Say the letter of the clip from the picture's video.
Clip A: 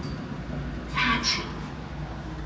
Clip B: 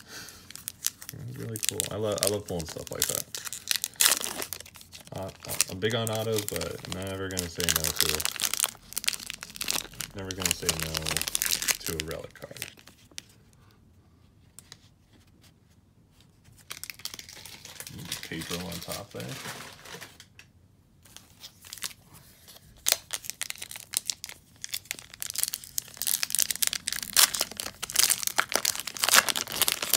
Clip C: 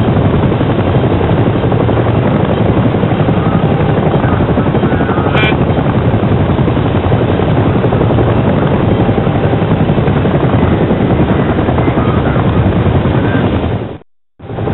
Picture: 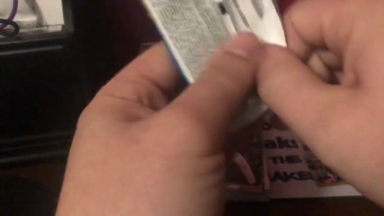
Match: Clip B